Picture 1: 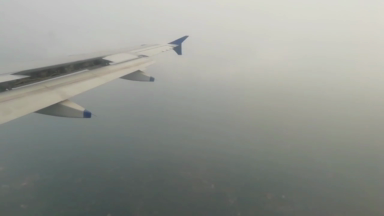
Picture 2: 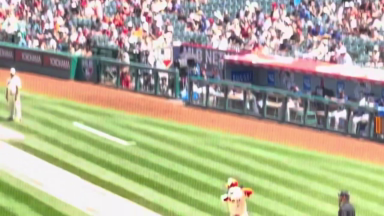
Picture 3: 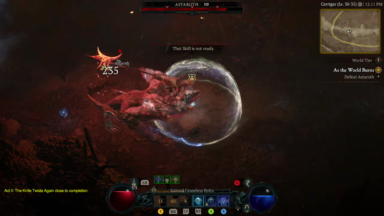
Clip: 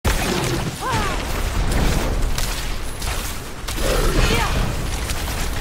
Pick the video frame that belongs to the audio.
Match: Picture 3